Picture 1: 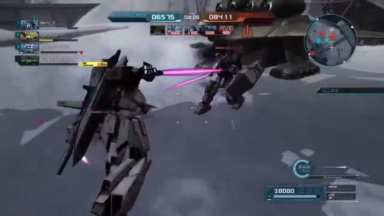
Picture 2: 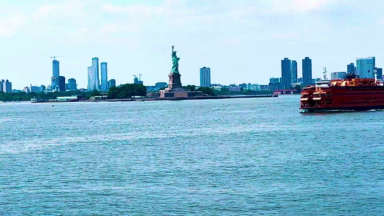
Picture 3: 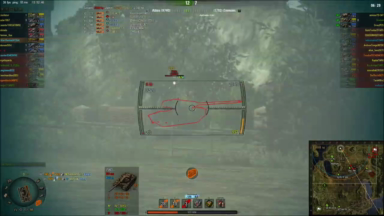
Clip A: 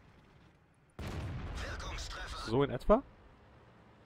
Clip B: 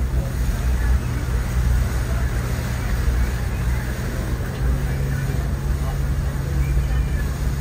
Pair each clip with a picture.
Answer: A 3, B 2